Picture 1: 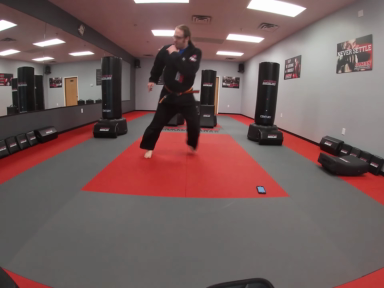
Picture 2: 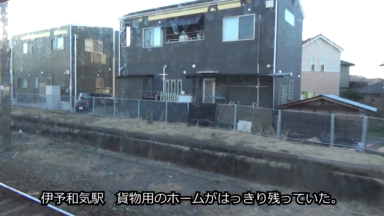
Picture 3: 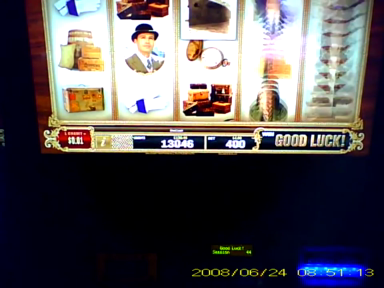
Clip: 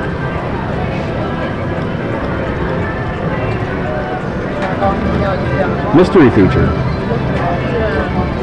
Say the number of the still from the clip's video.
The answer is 3